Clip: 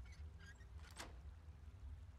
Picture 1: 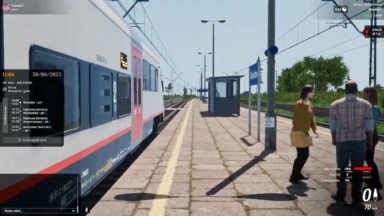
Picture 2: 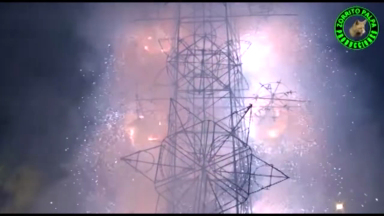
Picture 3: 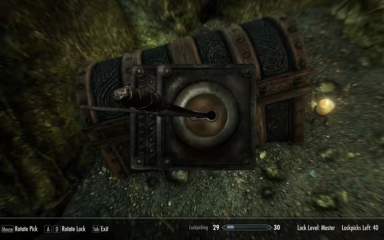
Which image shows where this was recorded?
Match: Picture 3